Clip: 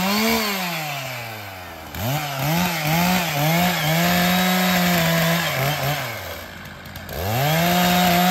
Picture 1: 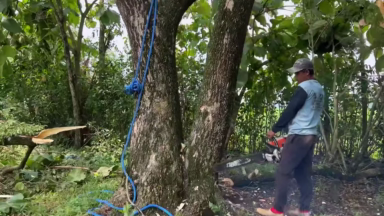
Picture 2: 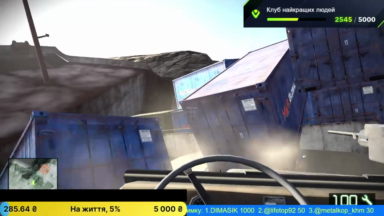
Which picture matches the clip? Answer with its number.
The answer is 1